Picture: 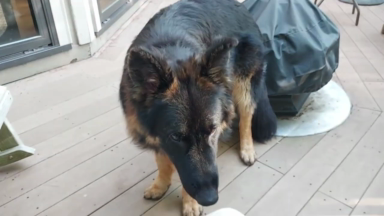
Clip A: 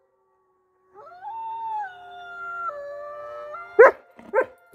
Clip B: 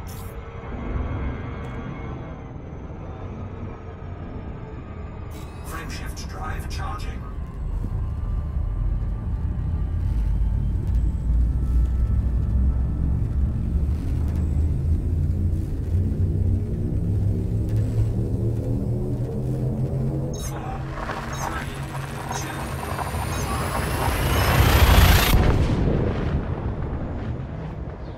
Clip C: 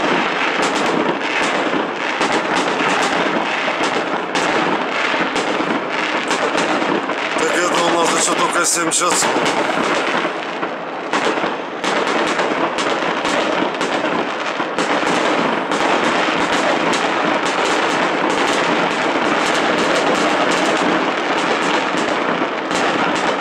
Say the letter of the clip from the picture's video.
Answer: A